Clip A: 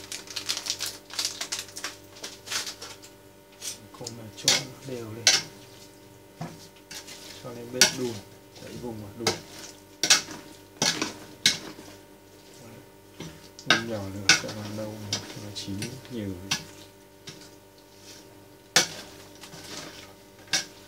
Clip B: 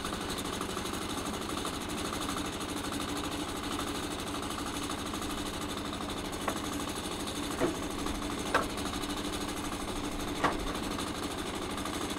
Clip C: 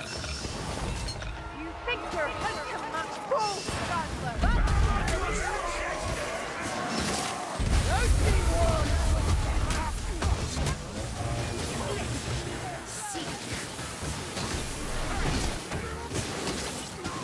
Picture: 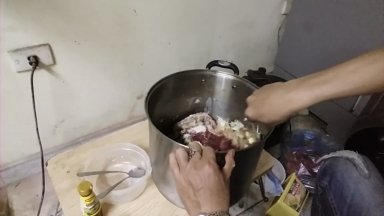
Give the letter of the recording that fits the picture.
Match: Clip A